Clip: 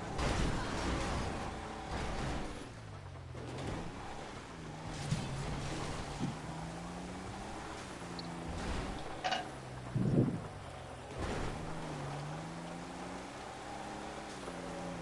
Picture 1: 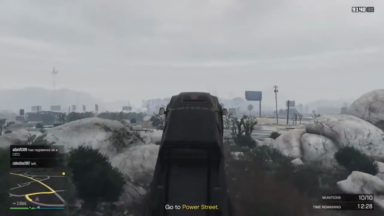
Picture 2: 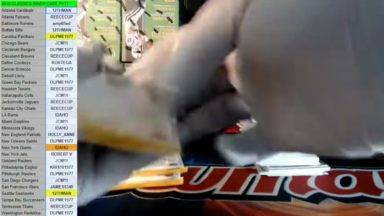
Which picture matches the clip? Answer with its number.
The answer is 1